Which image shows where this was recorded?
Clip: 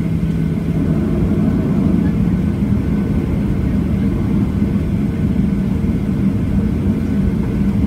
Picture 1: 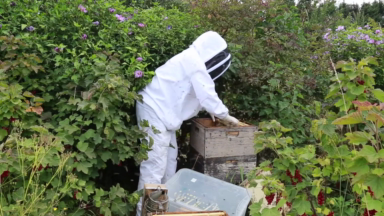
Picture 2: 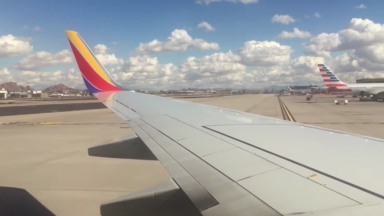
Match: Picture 2